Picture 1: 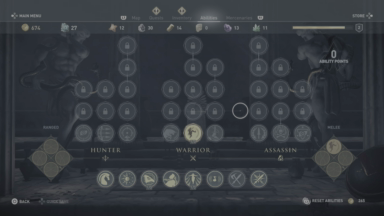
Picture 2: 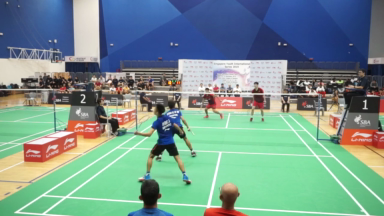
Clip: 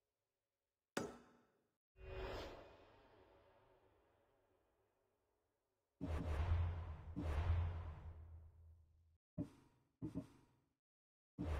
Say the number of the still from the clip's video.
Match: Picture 1